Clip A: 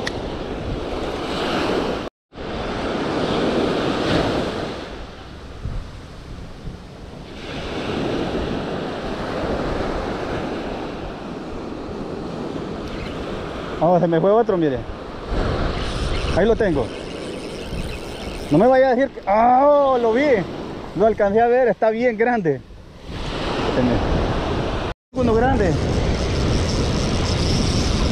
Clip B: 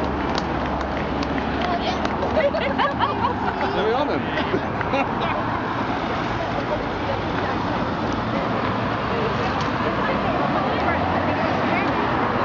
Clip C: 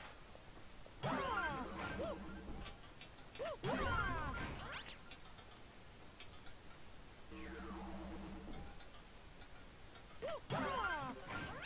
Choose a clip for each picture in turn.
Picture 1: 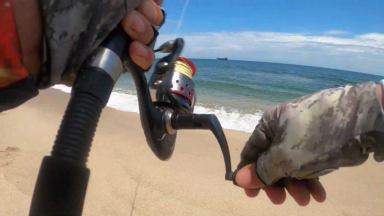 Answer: A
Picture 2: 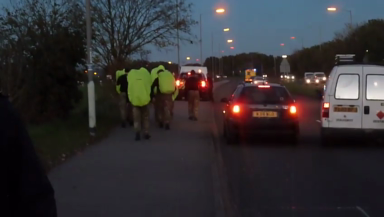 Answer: B